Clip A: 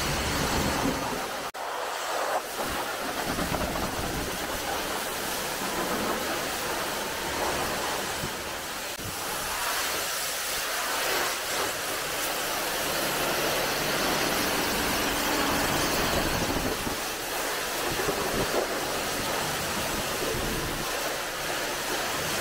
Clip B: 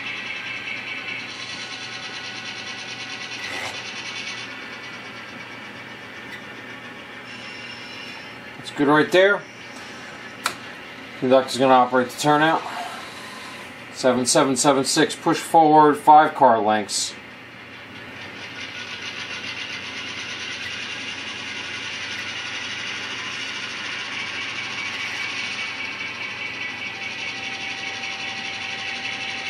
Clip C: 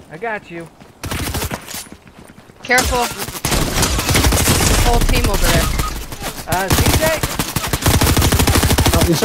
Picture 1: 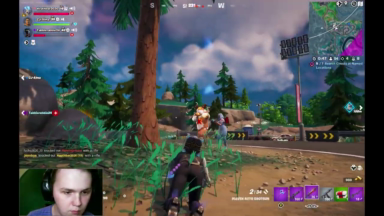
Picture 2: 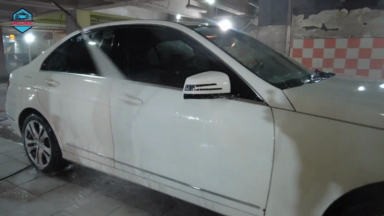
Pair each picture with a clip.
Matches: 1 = C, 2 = A